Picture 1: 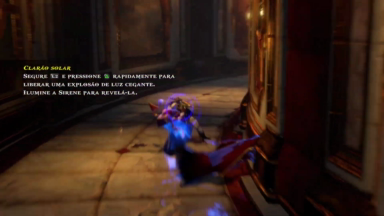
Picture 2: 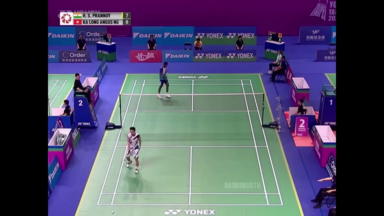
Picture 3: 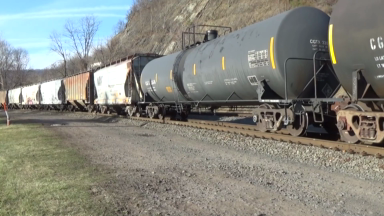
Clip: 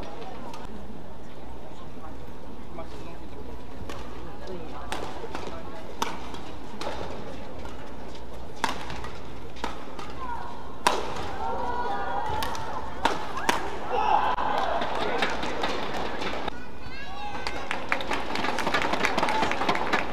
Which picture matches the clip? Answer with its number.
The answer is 2